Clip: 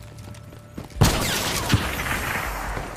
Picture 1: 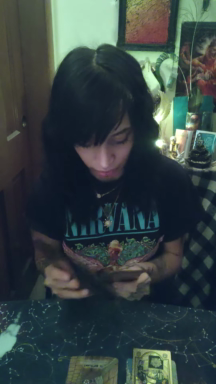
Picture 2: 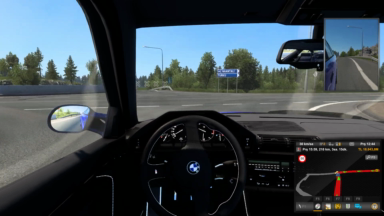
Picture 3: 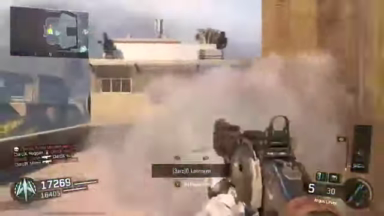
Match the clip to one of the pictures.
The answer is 3